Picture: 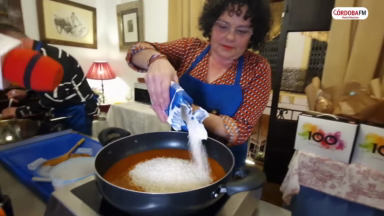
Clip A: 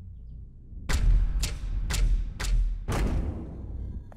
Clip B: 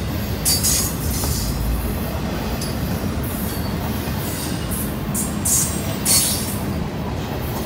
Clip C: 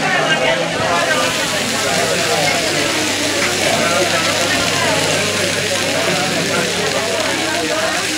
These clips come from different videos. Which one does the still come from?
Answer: C